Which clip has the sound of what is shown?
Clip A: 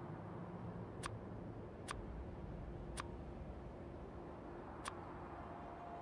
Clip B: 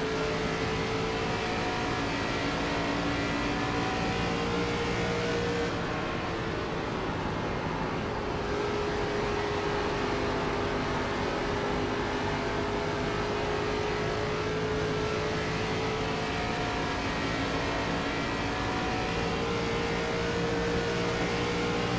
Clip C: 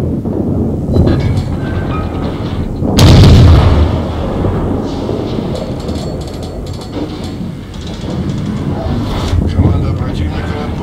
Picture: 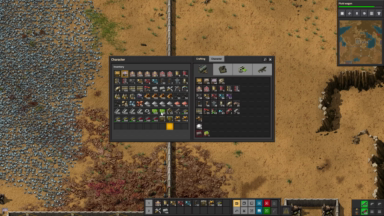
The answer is A